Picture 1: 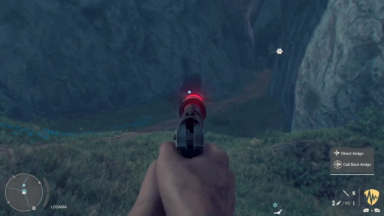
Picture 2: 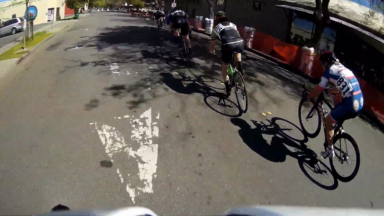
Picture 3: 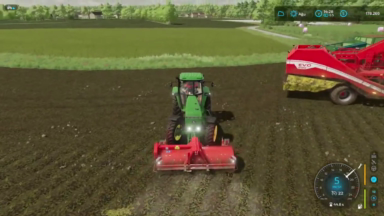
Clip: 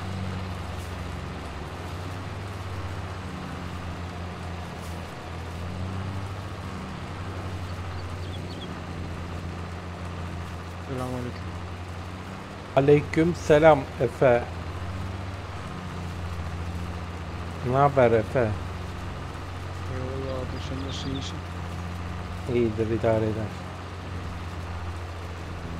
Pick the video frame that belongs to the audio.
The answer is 3